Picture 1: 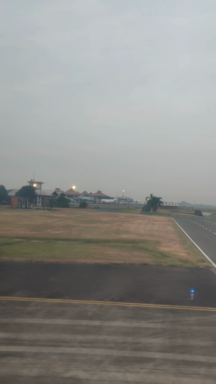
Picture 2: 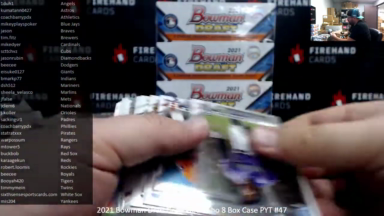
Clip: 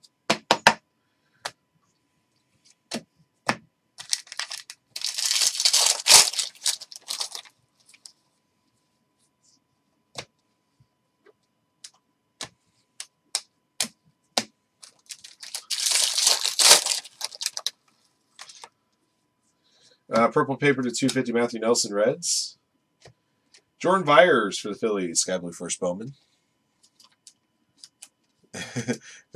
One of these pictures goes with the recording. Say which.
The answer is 2